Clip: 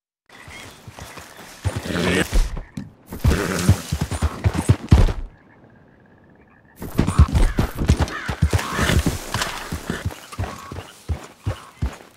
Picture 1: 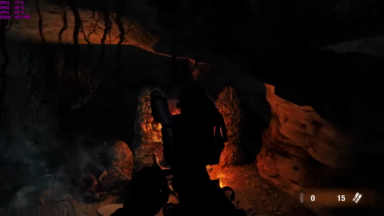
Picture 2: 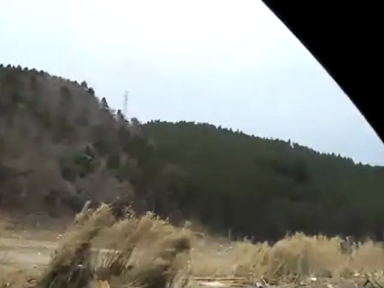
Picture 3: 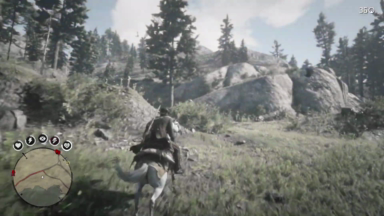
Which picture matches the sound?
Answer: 3